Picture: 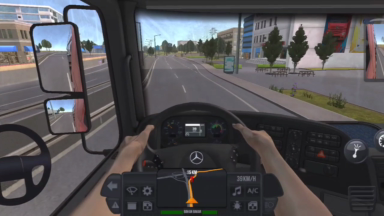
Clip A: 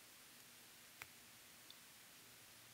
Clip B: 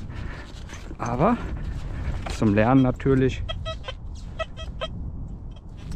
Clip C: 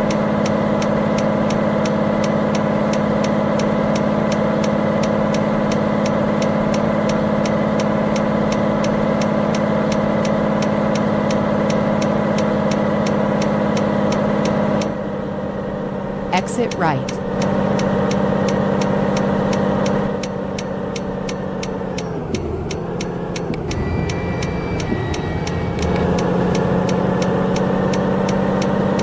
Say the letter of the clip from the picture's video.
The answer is C